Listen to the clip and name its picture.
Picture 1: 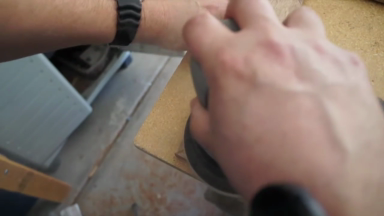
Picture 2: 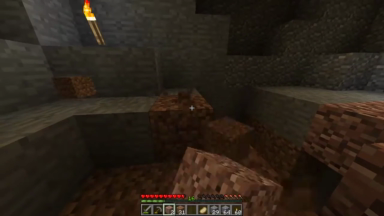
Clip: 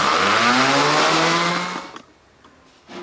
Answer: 1